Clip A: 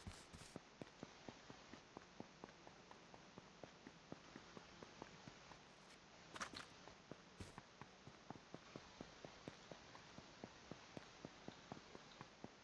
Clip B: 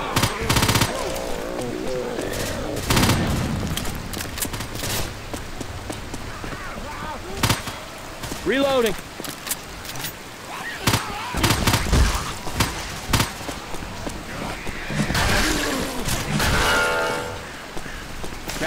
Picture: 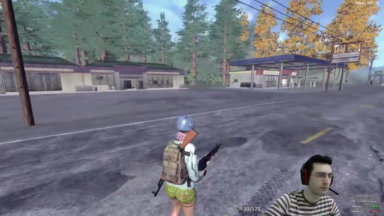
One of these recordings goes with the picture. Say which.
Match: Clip A